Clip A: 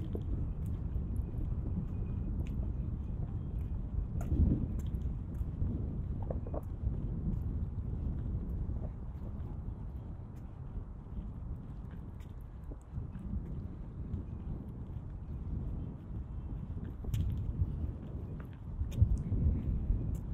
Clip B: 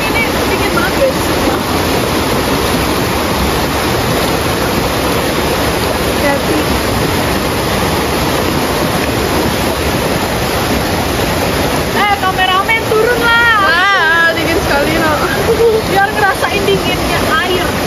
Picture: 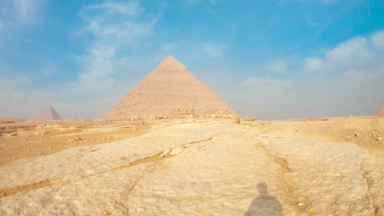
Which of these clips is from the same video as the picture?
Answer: A